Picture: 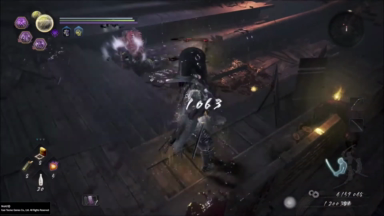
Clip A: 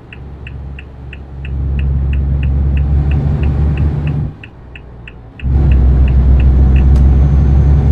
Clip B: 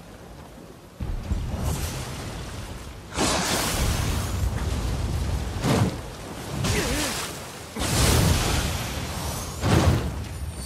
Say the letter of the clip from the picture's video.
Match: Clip B